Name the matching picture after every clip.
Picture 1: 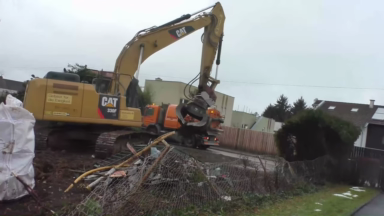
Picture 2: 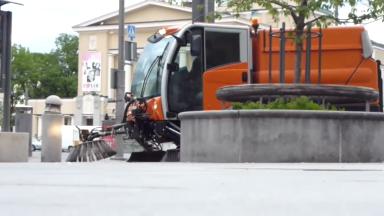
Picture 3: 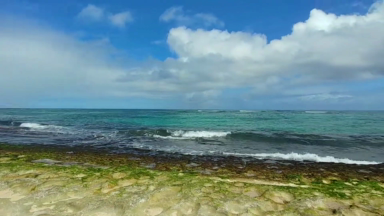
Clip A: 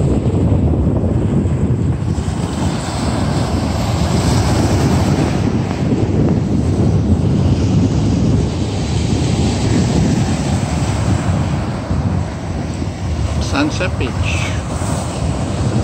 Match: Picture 3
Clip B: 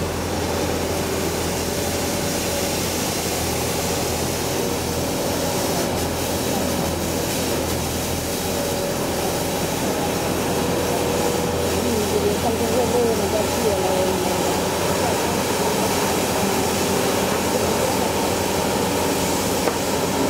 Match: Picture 2